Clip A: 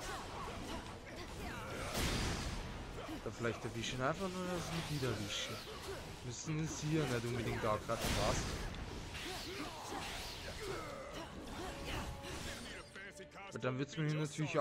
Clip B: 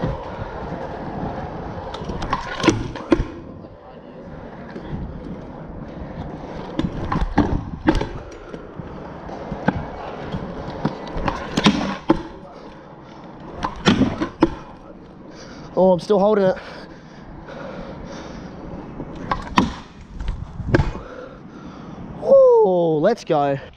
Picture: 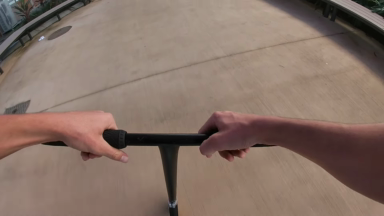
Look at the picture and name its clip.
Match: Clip B